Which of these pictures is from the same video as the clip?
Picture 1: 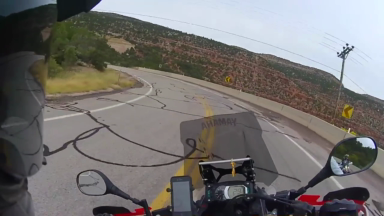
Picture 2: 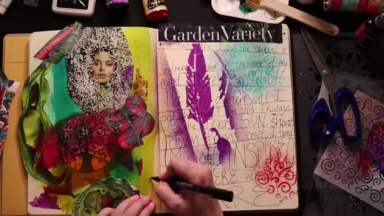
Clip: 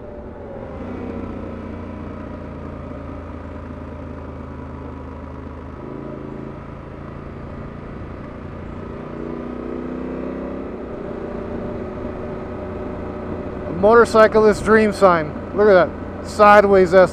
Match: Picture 1